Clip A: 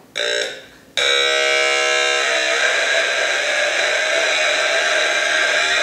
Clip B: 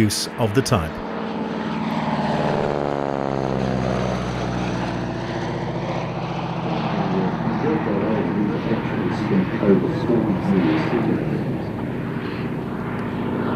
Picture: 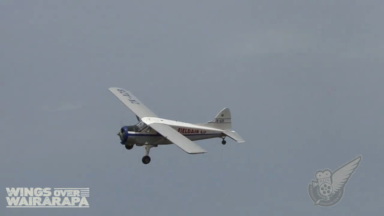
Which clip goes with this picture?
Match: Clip B